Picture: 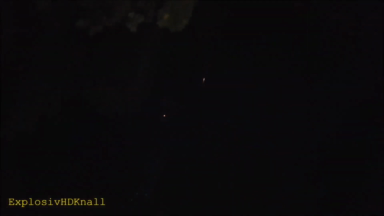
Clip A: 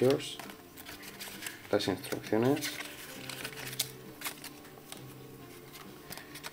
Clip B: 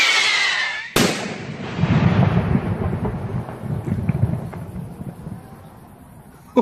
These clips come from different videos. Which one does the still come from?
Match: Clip B